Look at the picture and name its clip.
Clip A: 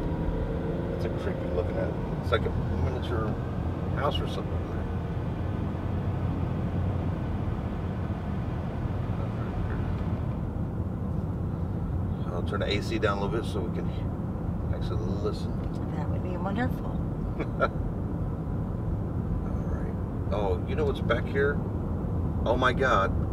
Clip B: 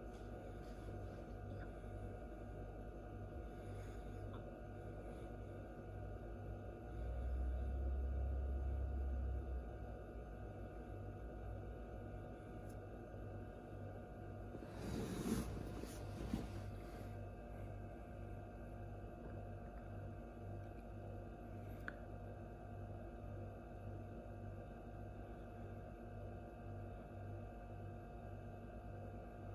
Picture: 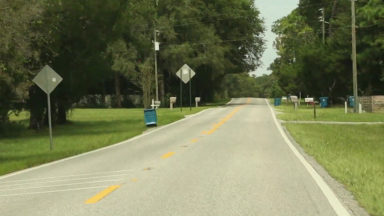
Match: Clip A